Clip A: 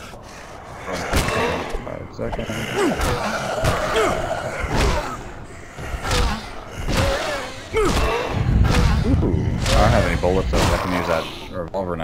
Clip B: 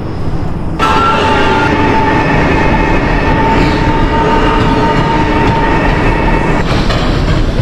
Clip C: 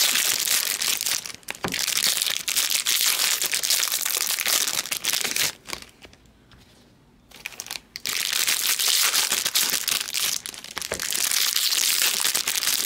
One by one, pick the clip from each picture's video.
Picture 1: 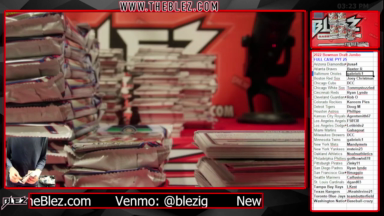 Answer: C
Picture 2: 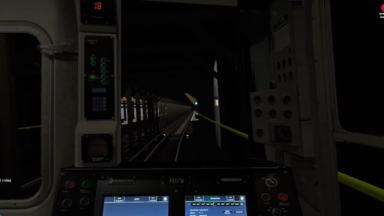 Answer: B